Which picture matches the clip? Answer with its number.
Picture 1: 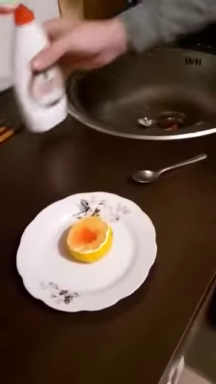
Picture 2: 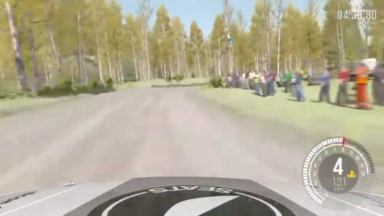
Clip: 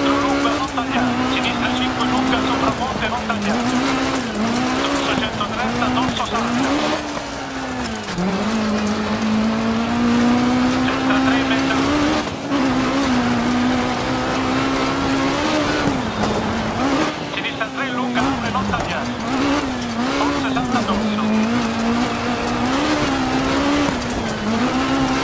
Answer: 2